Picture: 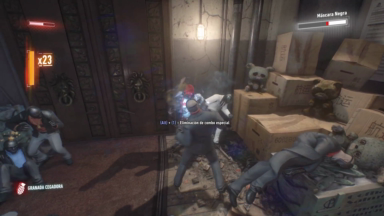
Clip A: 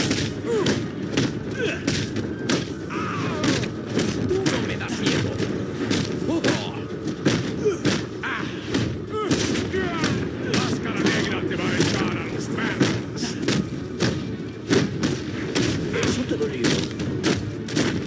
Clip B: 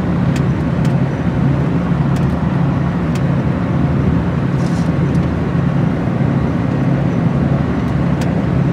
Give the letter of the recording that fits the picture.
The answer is A